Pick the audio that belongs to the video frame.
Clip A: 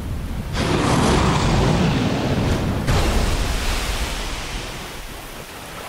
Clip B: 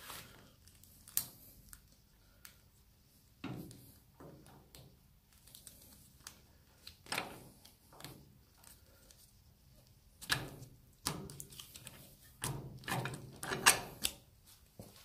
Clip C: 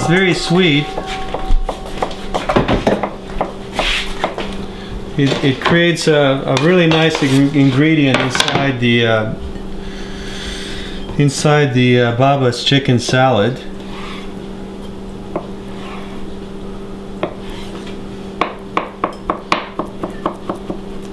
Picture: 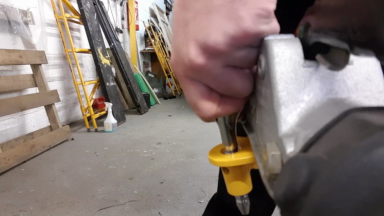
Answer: B